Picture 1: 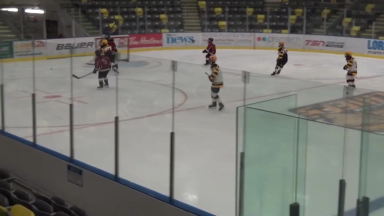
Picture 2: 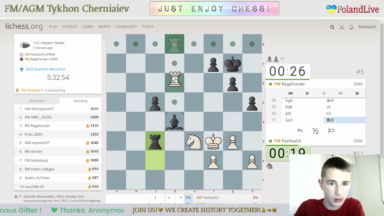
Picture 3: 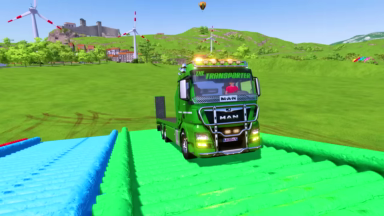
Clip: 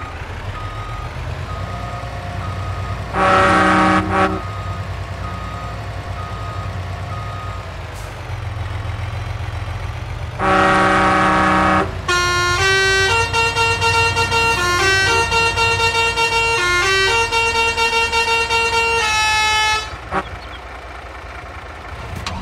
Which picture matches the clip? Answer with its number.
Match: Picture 3